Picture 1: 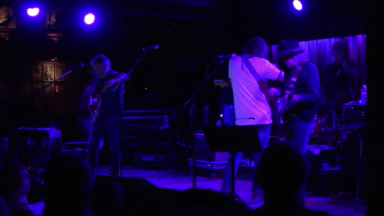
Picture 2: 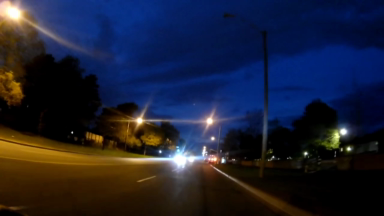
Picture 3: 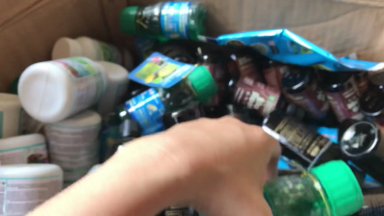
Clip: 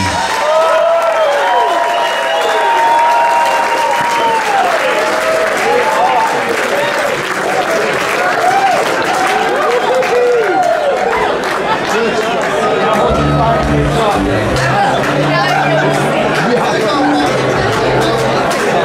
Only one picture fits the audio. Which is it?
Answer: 1